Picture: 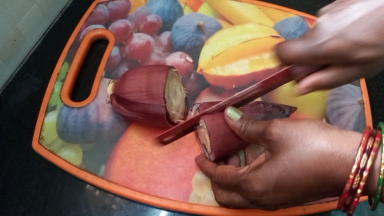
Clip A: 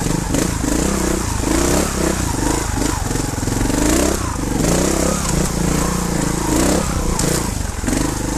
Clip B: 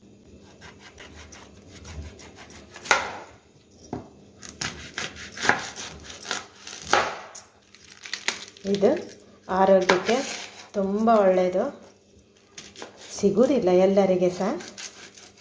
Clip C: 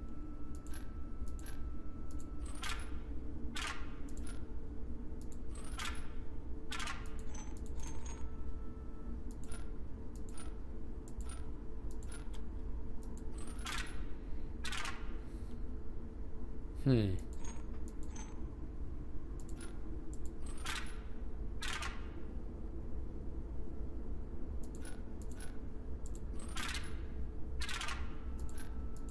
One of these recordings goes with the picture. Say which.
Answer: B